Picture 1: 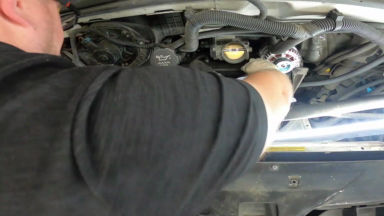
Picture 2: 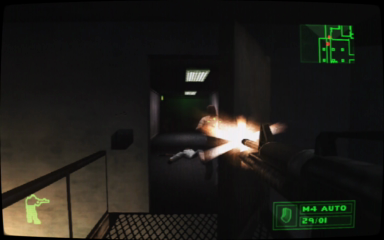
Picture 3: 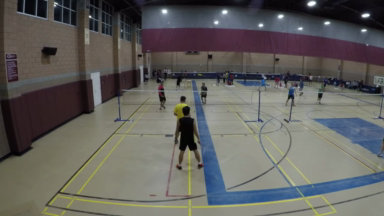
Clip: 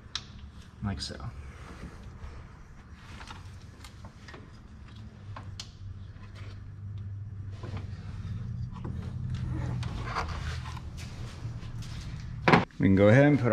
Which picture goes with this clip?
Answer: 1